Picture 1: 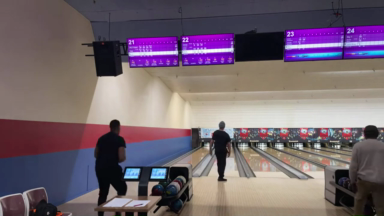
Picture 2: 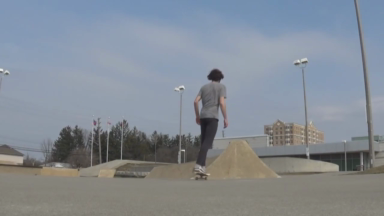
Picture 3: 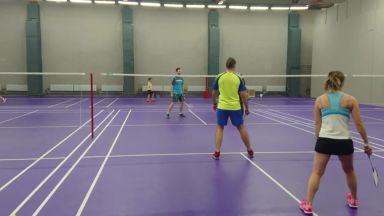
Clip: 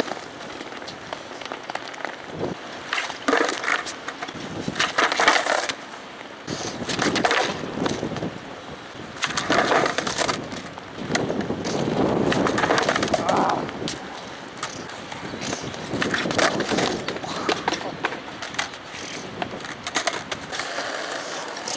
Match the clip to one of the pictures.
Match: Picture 2